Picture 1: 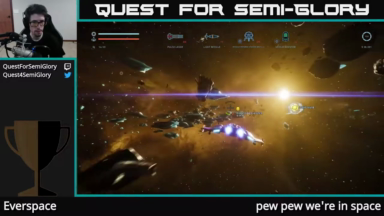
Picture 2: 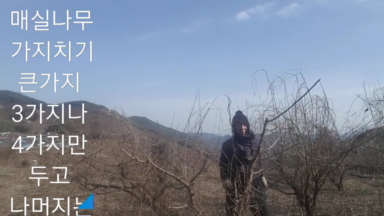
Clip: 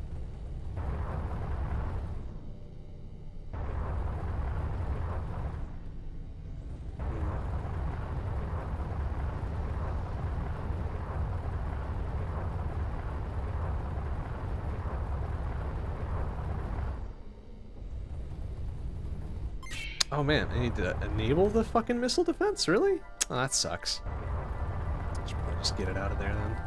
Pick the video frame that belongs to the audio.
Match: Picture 1